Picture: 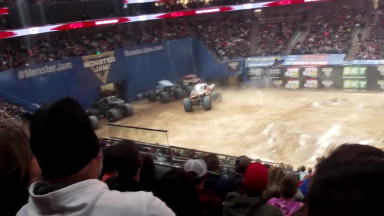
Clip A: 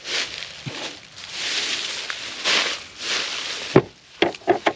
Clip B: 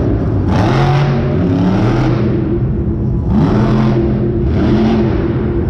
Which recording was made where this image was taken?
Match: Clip B